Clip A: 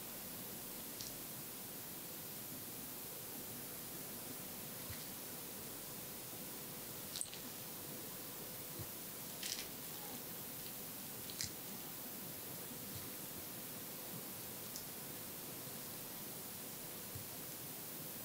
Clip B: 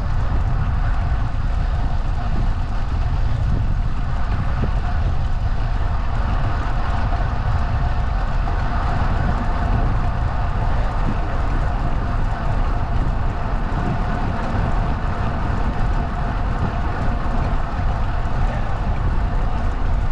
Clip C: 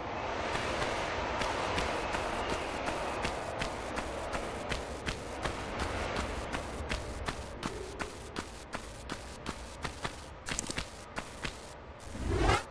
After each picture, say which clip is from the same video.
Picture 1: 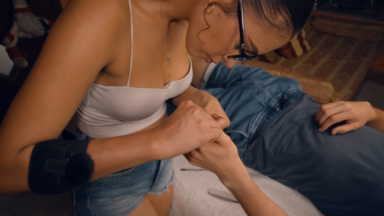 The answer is A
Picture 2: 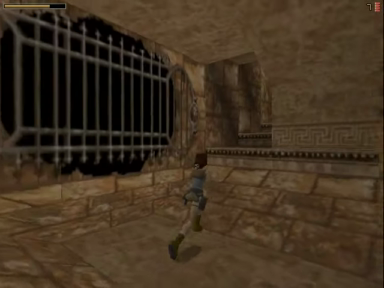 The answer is C